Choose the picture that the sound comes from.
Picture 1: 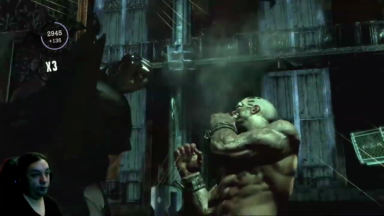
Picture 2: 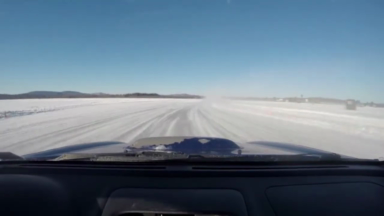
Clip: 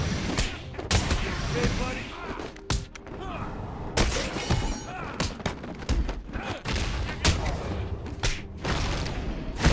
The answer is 1